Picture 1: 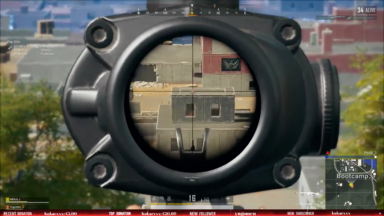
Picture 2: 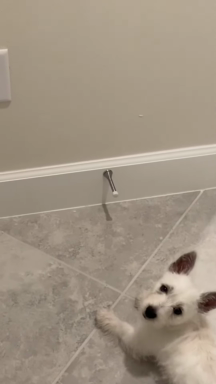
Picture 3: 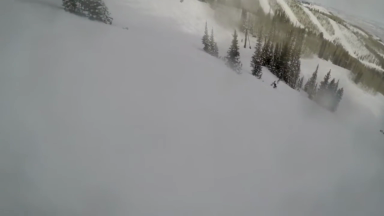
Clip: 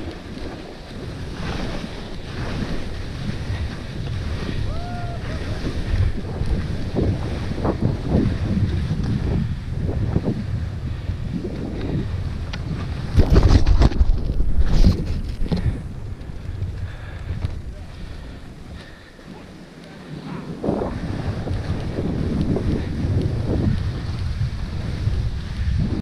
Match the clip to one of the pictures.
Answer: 3